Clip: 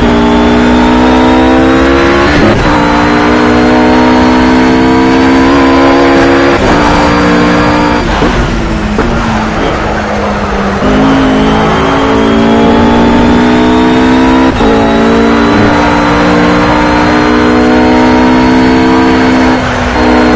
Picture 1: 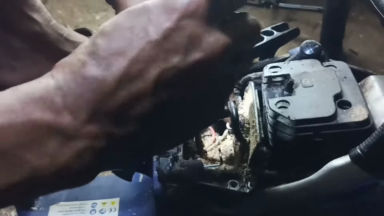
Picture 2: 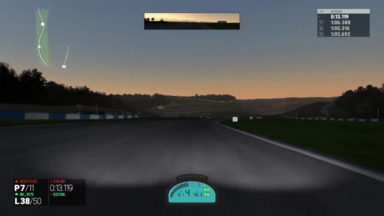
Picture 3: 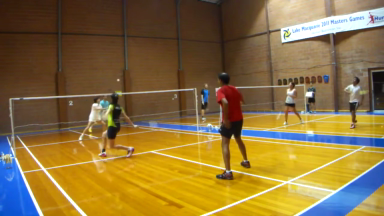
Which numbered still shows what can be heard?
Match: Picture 2